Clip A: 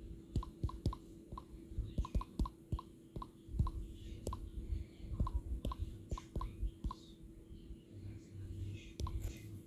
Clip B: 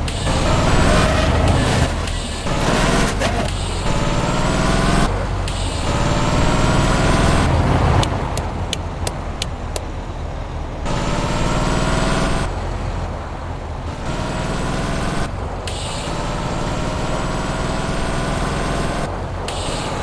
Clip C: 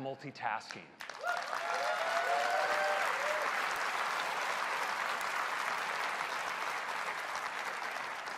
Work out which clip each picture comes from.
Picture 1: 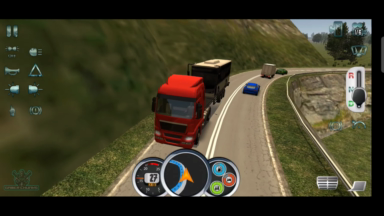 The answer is B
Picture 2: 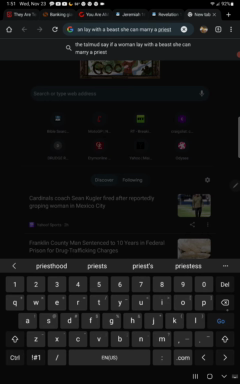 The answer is A